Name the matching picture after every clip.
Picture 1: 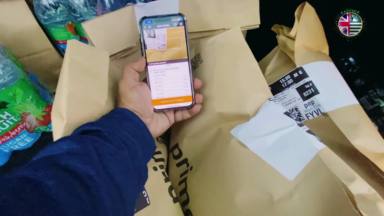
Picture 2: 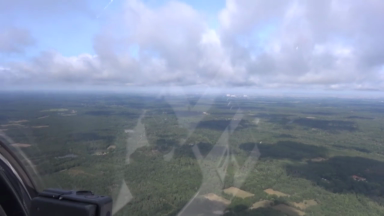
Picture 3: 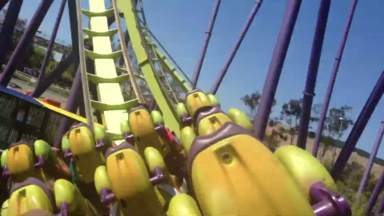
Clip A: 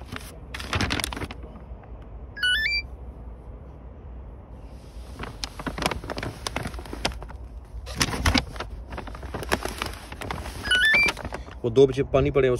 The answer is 1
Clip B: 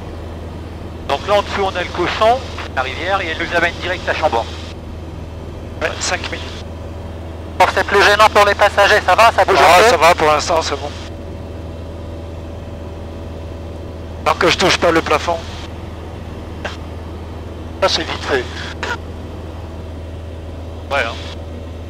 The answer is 2